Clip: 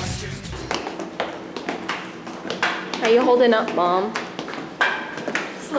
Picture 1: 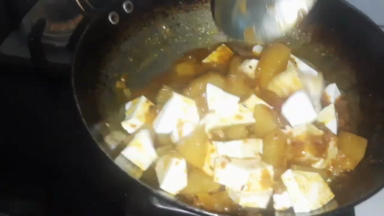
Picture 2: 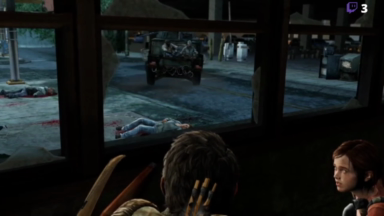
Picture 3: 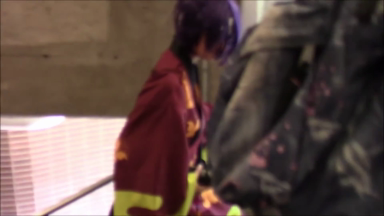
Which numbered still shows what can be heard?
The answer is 3